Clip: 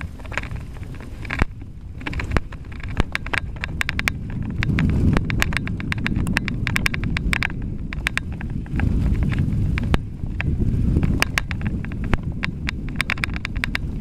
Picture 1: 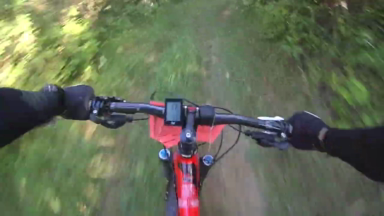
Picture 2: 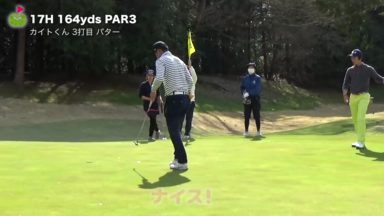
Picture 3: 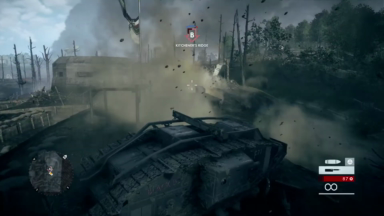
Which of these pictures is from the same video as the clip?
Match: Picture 1